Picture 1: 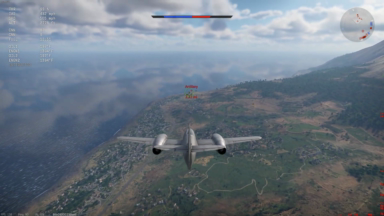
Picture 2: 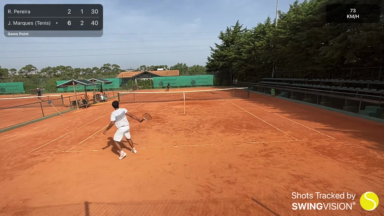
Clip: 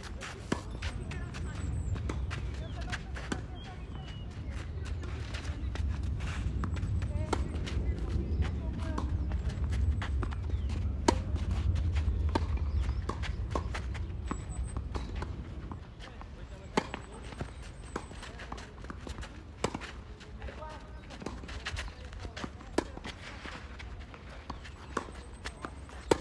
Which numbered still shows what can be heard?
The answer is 2